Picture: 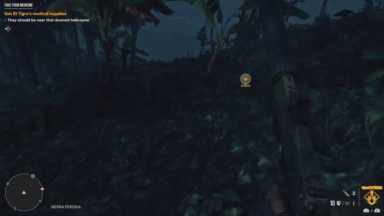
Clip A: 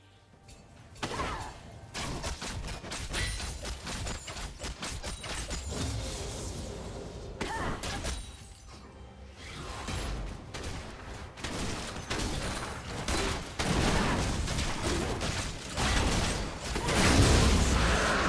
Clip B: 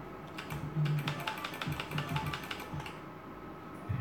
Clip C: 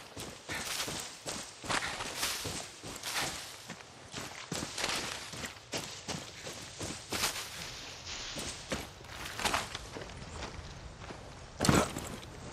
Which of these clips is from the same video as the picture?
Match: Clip C